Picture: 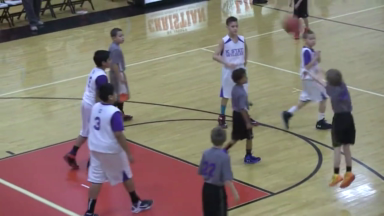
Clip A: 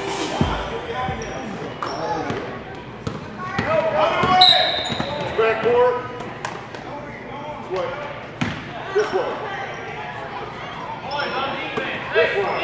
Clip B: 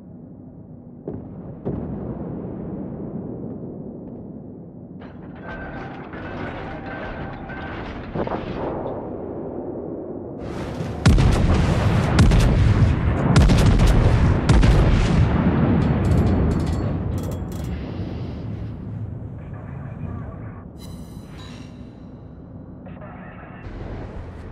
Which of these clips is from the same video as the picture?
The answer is A